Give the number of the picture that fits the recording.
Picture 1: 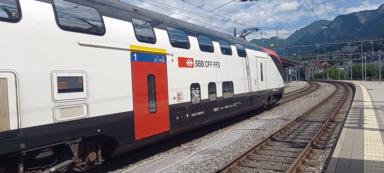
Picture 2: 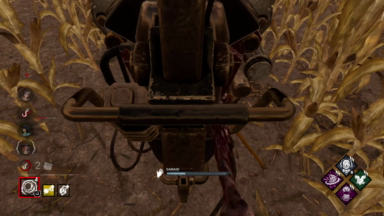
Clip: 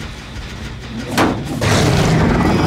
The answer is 2